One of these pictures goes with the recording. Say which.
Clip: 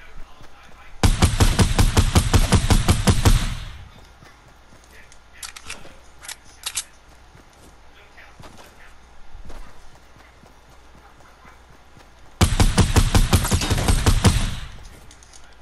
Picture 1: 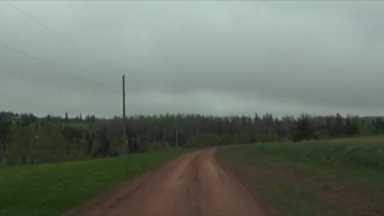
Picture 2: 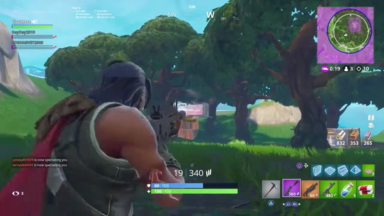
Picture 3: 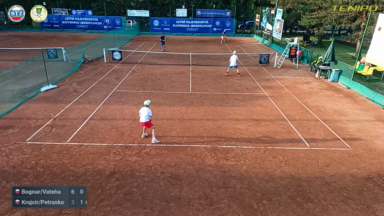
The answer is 2